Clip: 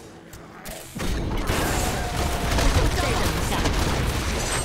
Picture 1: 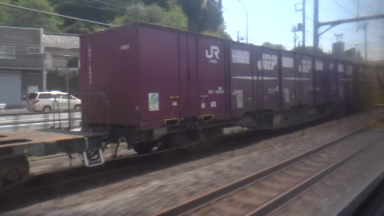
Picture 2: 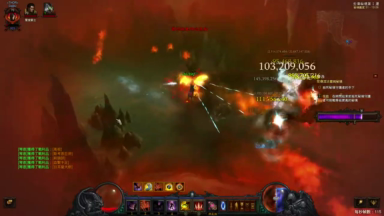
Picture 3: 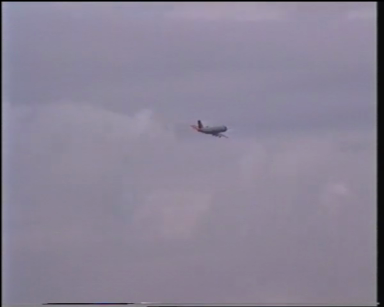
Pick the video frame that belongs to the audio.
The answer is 2